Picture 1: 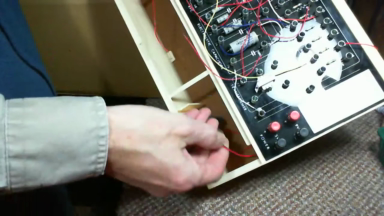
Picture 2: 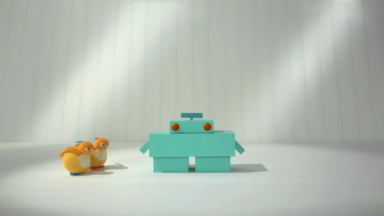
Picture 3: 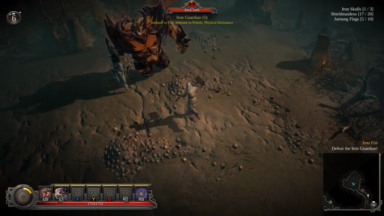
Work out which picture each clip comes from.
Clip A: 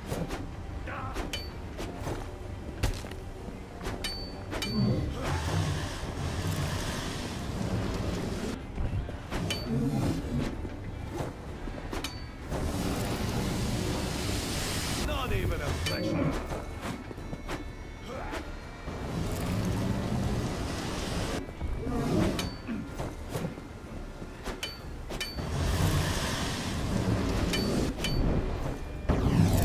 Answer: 3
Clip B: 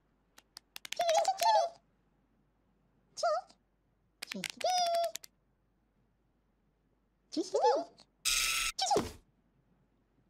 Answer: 2